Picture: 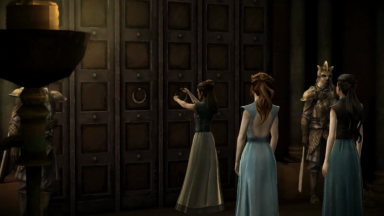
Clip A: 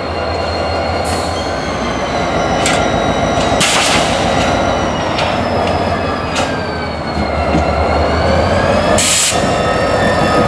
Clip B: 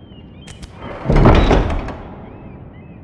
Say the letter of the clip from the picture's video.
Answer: B